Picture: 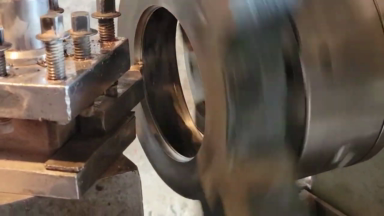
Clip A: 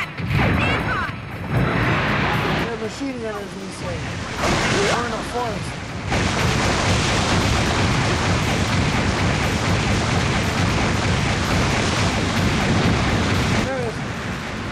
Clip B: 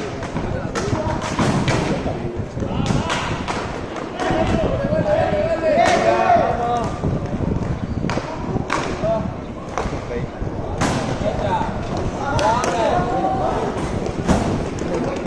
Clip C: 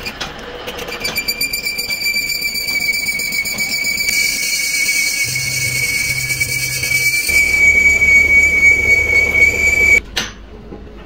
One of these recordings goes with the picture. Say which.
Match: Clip C